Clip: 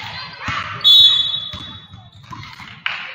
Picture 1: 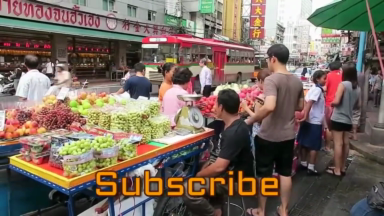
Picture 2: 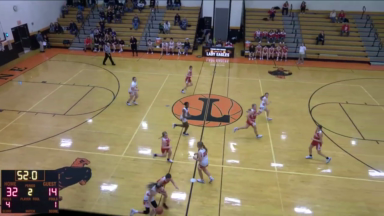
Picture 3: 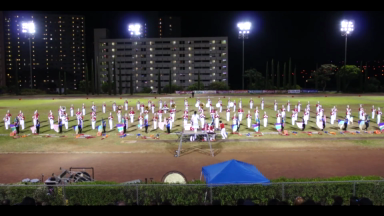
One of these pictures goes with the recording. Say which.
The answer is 2